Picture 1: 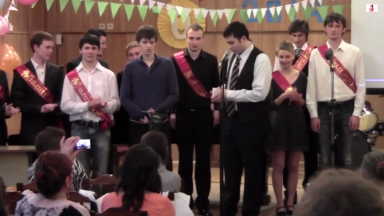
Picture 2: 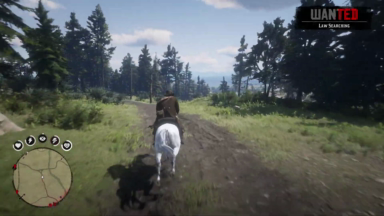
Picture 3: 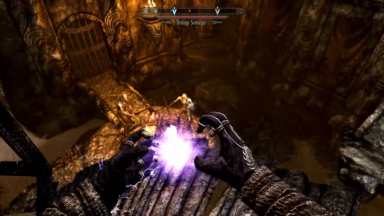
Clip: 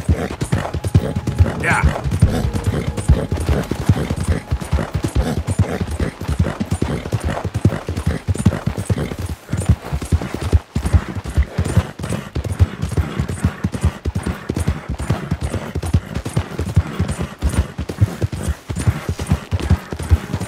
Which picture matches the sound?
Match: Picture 2